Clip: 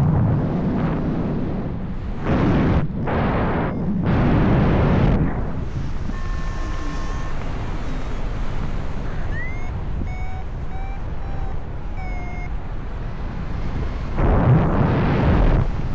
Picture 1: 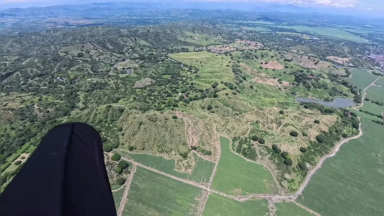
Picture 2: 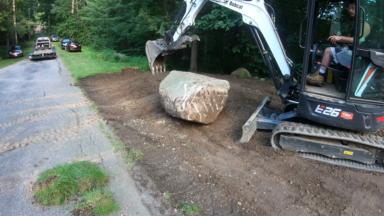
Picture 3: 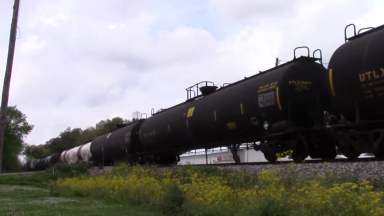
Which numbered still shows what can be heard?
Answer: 1